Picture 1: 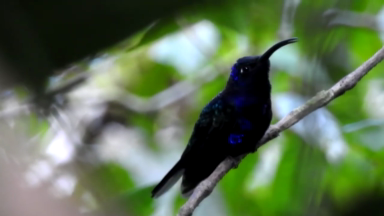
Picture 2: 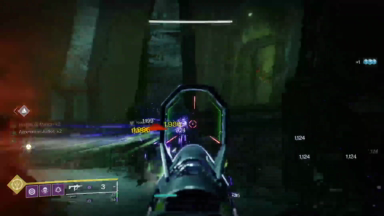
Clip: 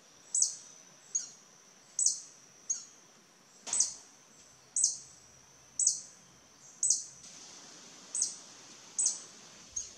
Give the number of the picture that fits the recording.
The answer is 1